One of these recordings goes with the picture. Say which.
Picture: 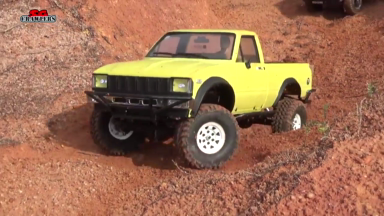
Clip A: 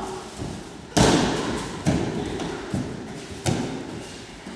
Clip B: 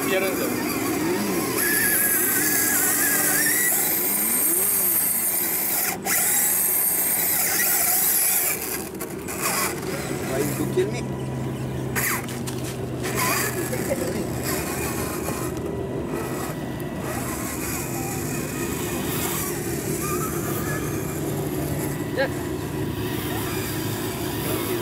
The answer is B